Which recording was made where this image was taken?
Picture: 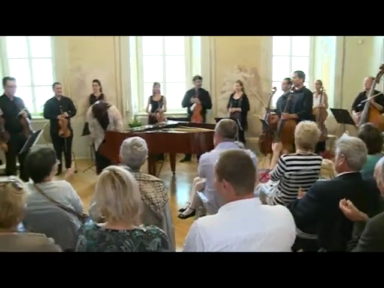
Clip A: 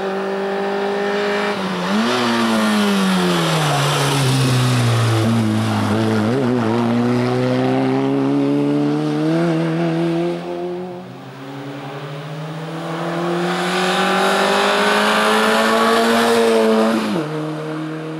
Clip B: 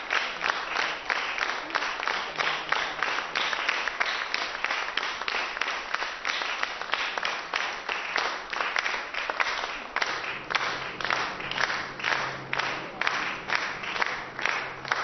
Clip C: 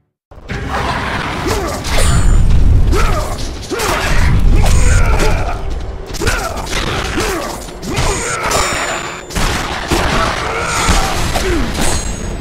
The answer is B